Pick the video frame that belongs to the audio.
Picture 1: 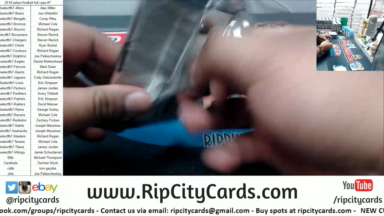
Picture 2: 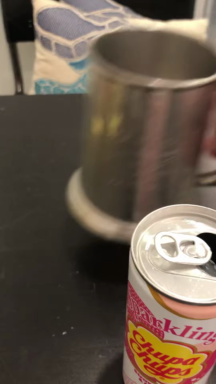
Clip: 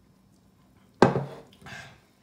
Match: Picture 2